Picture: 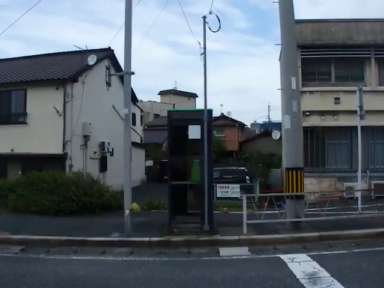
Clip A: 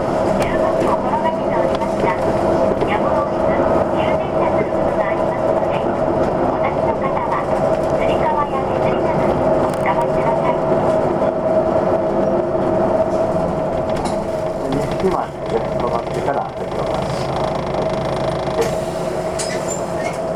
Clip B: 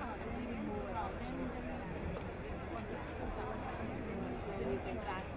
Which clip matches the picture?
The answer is A